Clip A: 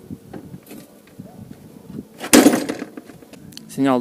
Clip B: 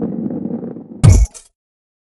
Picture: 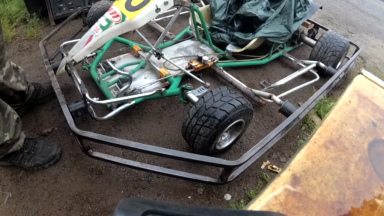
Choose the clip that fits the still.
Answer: A